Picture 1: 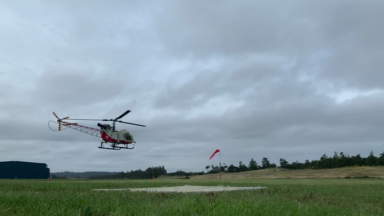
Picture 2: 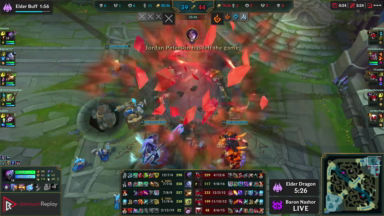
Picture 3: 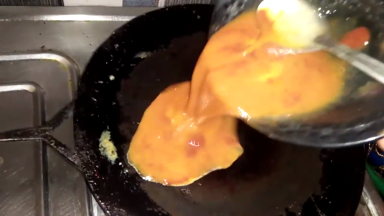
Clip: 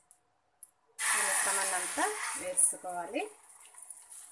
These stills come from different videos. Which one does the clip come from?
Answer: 3